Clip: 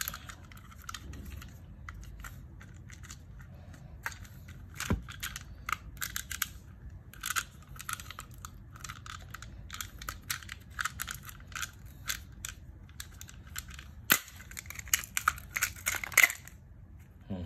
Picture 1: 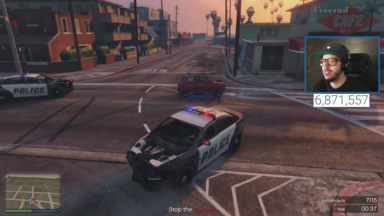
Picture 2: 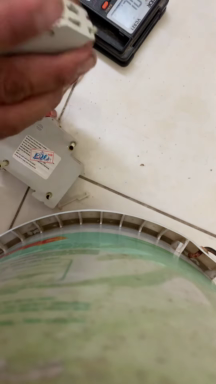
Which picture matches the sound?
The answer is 2